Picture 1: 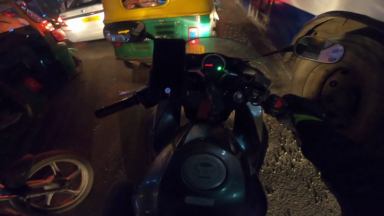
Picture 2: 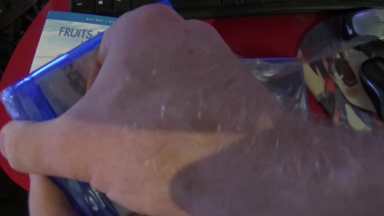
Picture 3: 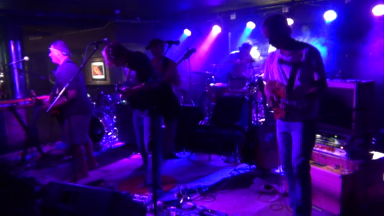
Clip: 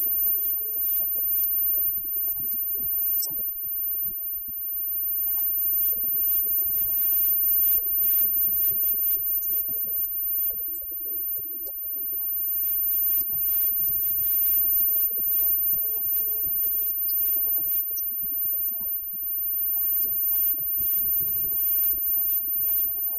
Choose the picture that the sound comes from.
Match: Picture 3